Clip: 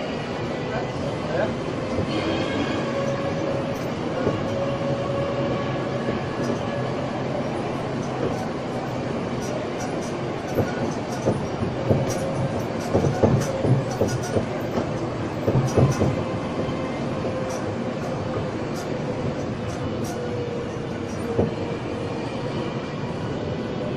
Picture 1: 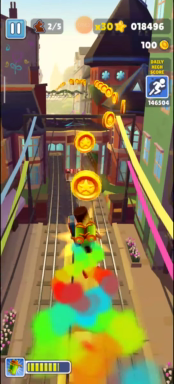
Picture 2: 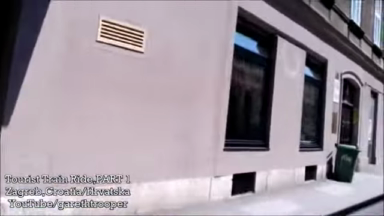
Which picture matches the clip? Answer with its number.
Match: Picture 2